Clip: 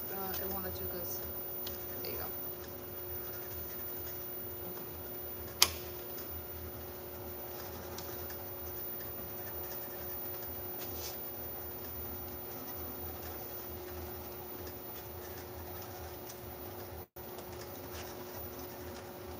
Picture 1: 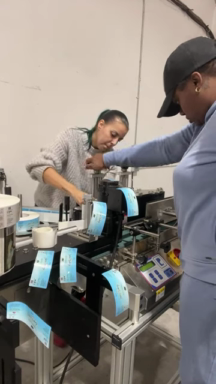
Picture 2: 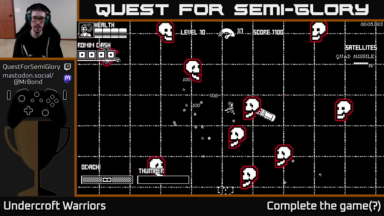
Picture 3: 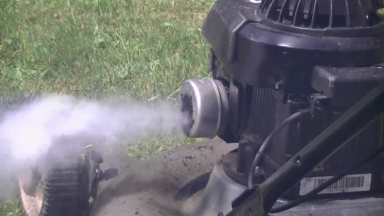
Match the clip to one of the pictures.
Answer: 1